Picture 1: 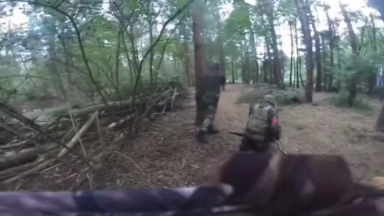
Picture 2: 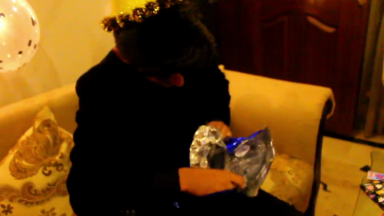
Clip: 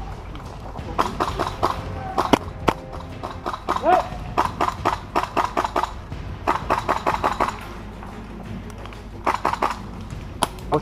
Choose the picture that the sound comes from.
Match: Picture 1